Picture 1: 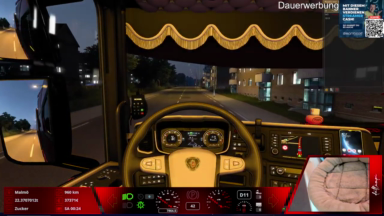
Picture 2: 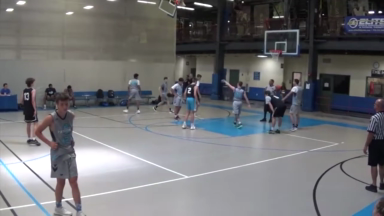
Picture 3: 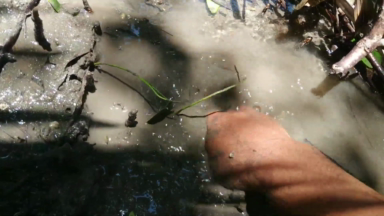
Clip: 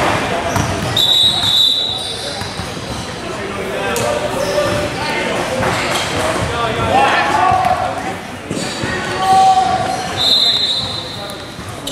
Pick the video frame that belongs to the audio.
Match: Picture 2